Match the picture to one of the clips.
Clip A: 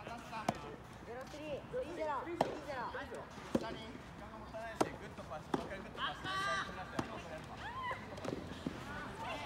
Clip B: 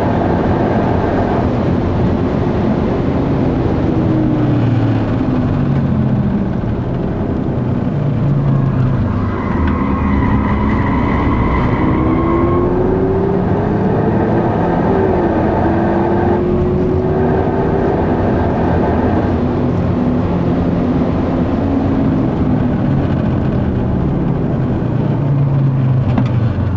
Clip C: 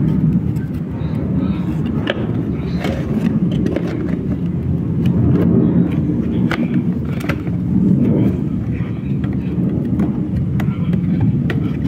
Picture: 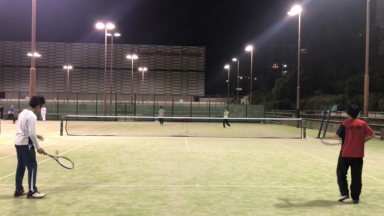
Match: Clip A